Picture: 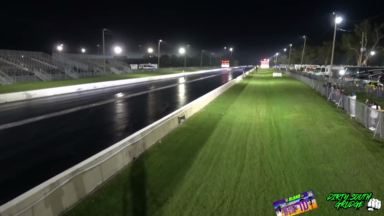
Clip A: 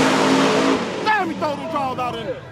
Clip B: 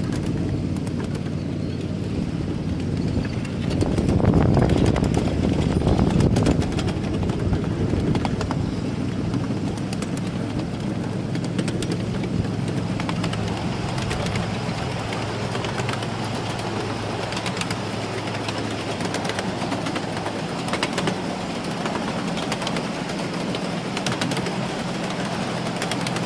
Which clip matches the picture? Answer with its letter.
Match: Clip A